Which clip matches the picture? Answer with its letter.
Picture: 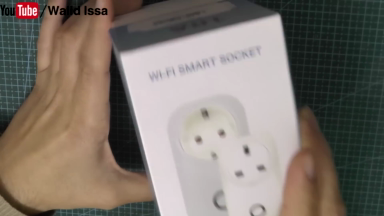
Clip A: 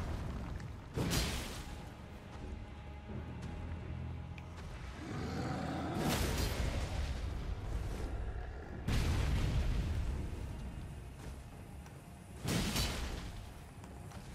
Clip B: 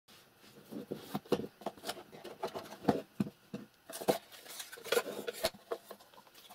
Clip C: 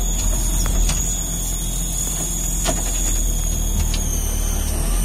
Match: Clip B